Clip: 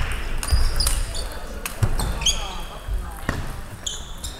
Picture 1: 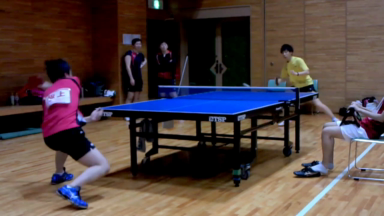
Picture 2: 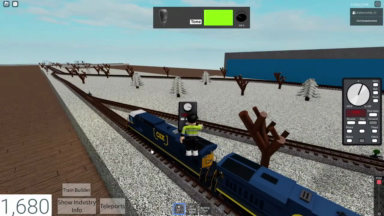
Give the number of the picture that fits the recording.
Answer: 1